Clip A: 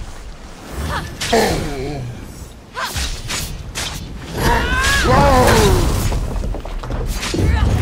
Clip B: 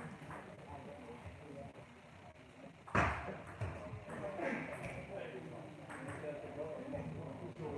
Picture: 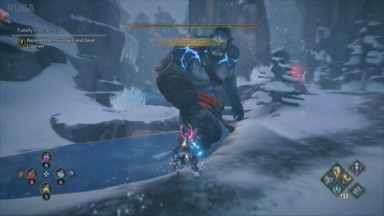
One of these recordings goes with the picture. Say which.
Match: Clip A